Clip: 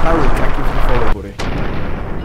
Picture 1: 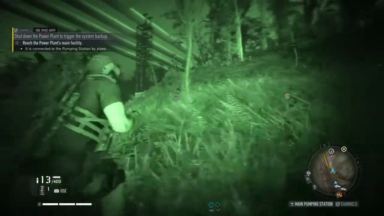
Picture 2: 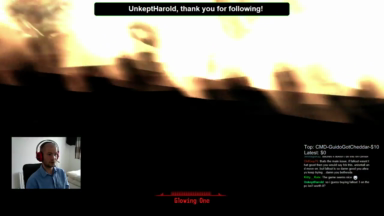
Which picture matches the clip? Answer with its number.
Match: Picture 2